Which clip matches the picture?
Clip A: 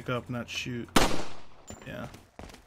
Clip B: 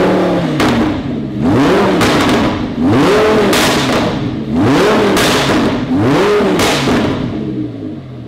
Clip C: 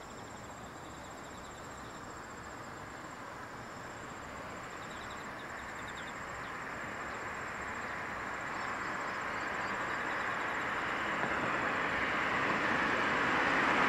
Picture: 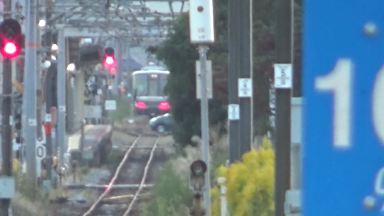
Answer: C